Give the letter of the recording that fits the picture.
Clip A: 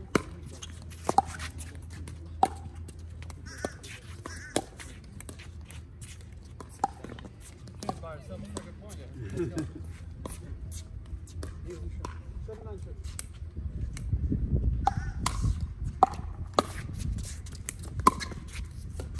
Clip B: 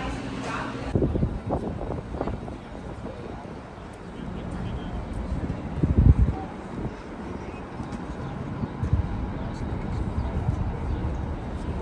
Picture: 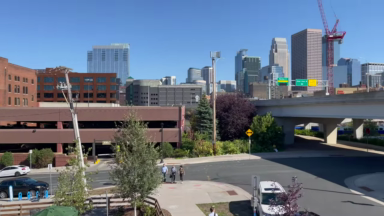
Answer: B